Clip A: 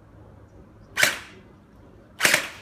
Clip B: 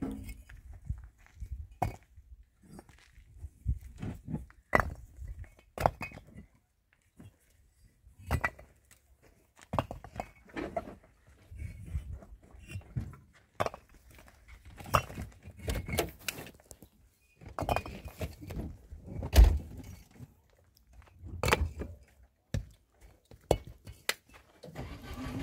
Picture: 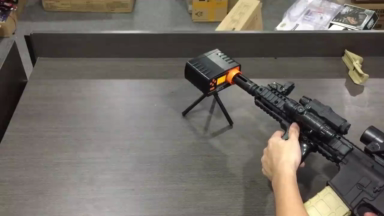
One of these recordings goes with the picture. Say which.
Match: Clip A